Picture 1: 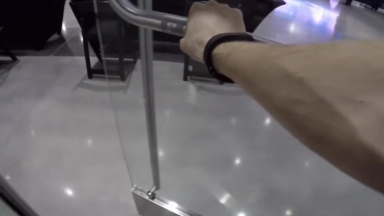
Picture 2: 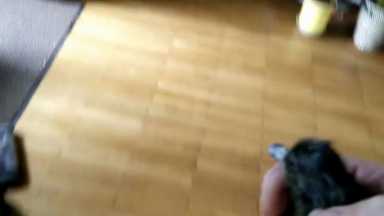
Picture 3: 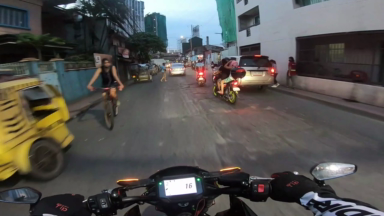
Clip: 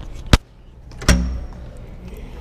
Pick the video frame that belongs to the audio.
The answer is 1